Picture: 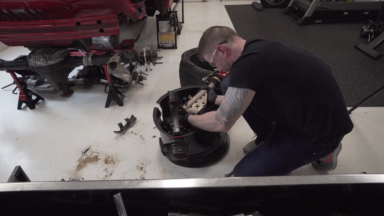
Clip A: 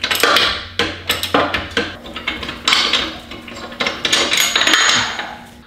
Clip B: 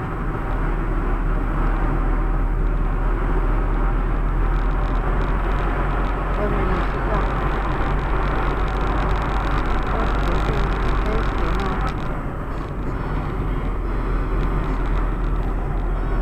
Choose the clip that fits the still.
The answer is A